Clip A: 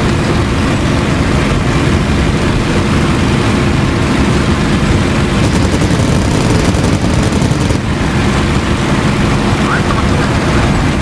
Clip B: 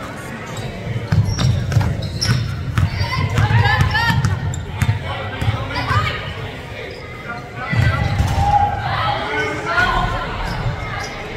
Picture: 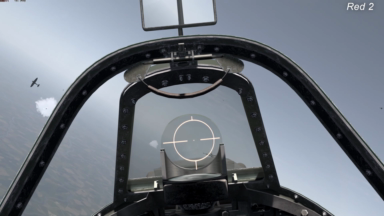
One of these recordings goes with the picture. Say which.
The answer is A